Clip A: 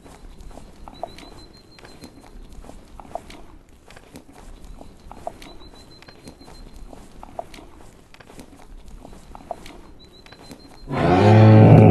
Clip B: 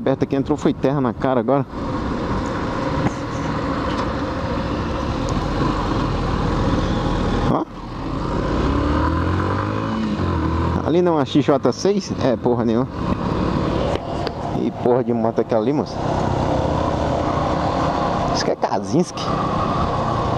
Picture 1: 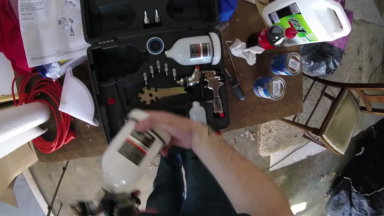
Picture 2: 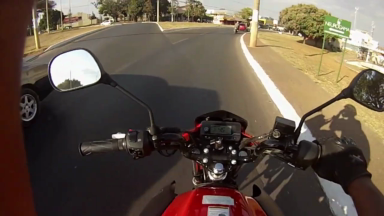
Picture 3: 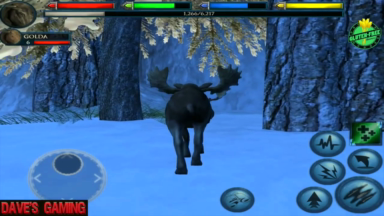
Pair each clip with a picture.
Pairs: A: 3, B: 2